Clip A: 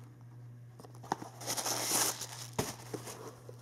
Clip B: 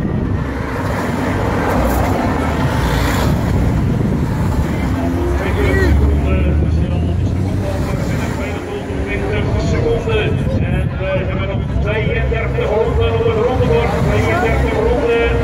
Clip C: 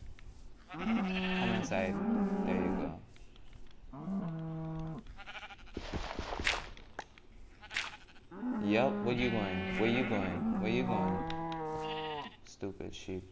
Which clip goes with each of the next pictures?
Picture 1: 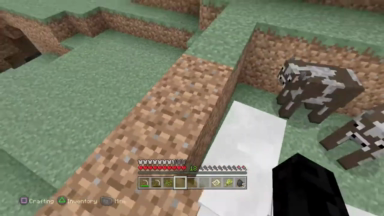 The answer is C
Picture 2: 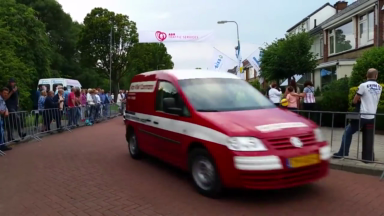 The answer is B